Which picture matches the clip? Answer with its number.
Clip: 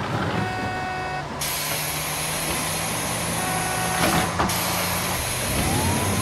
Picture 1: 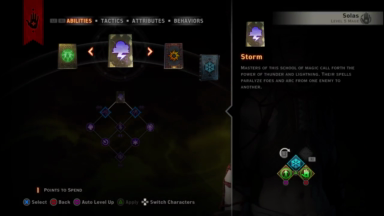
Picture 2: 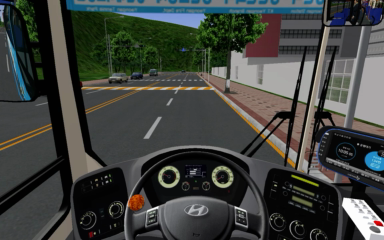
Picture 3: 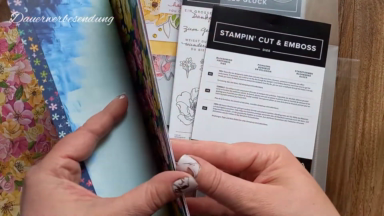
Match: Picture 2